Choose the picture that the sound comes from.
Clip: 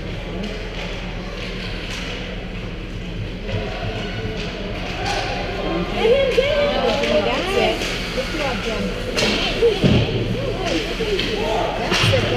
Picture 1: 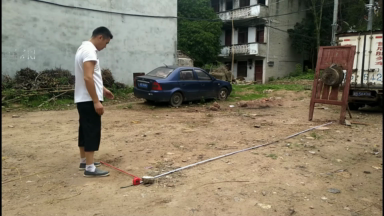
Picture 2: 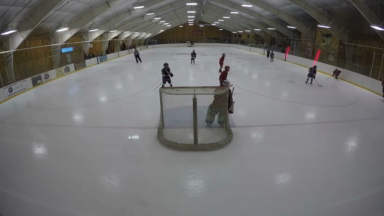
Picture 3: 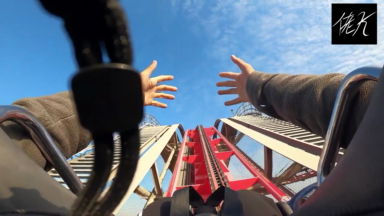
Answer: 2